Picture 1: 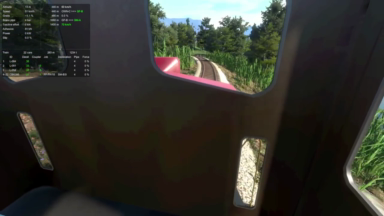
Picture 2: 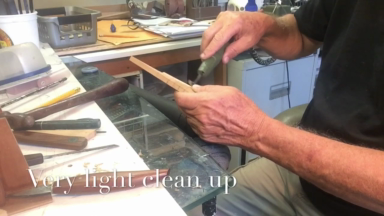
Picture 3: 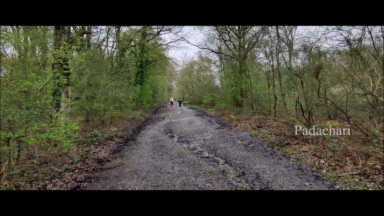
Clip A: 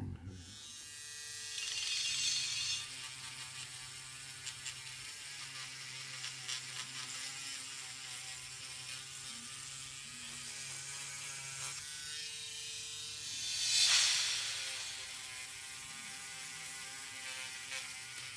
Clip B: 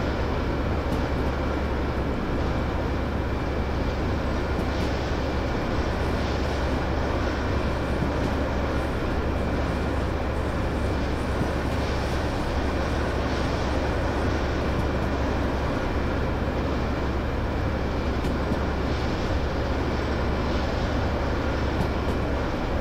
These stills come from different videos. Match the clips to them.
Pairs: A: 2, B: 1